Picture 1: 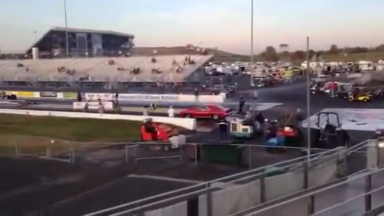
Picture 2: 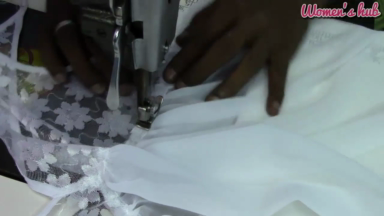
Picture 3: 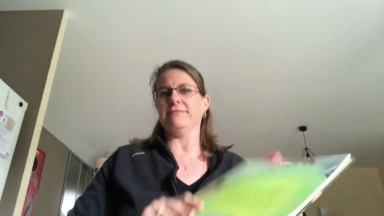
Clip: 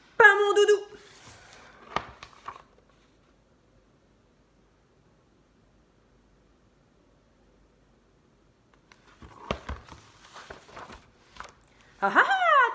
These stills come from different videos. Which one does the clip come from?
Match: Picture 3